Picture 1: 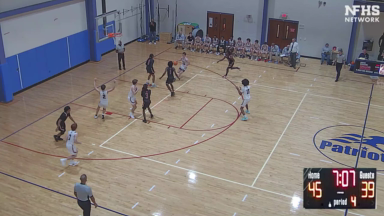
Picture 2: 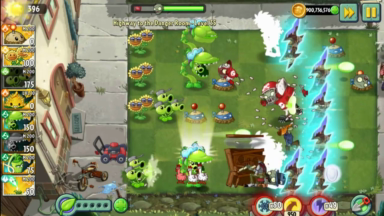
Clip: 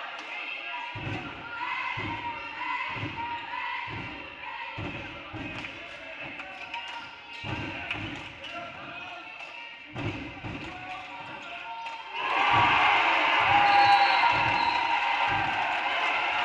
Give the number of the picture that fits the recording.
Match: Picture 1